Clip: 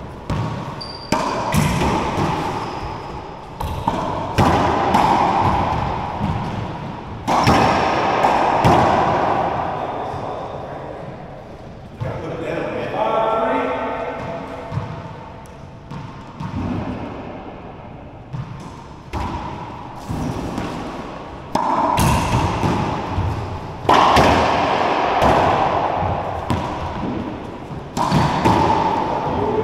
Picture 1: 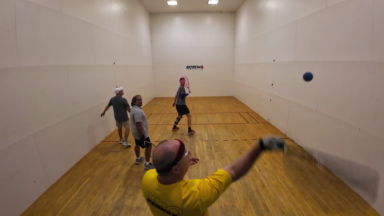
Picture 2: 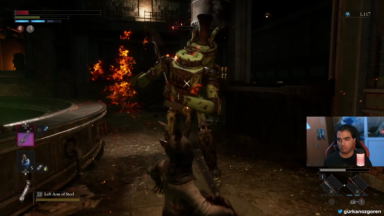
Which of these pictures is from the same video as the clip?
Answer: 1